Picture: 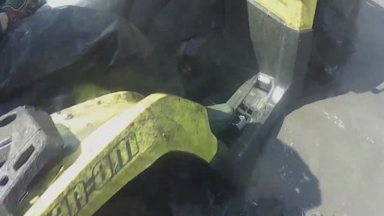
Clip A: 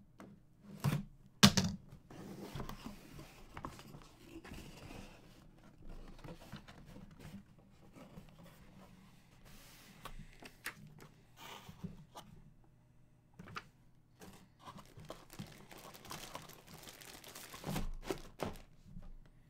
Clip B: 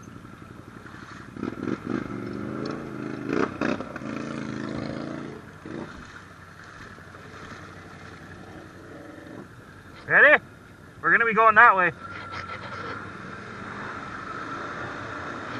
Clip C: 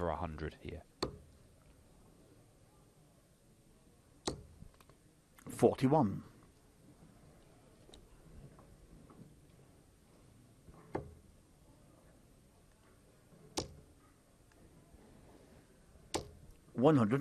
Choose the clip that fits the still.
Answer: B